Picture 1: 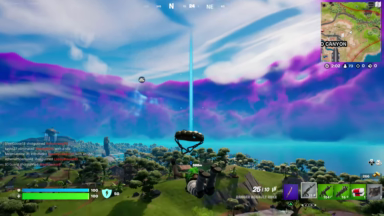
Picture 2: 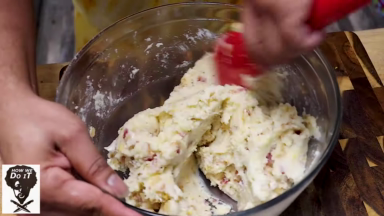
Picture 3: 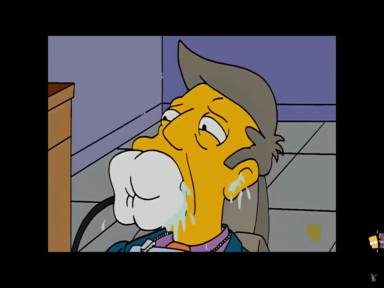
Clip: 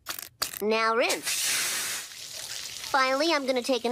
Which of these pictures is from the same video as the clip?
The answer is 3